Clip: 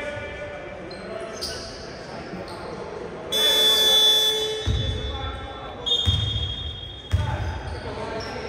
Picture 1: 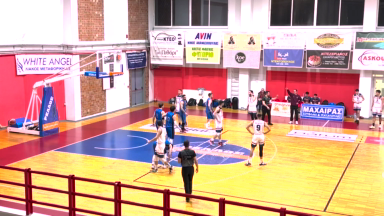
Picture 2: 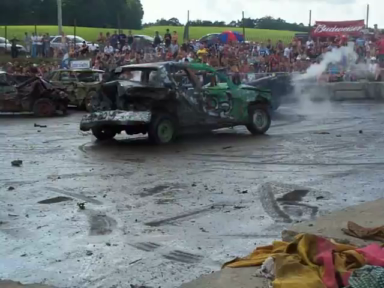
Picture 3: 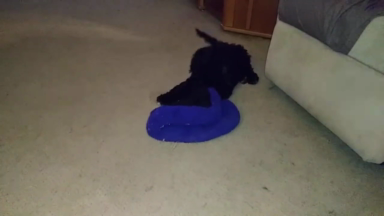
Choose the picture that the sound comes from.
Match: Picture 1